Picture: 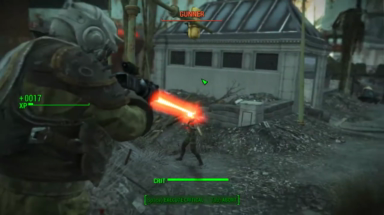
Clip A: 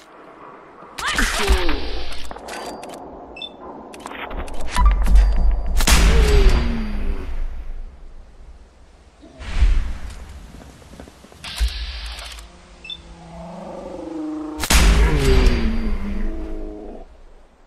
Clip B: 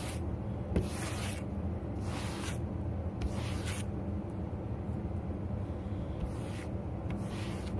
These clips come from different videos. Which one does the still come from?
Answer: A